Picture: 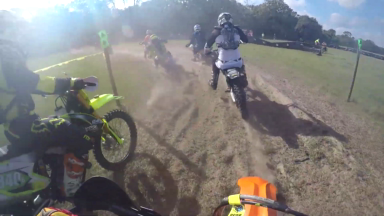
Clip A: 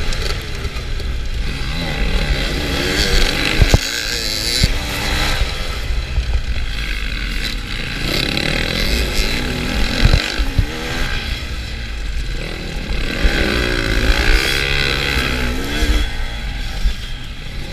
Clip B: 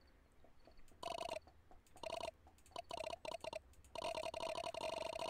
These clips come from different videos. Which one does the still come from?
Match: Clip A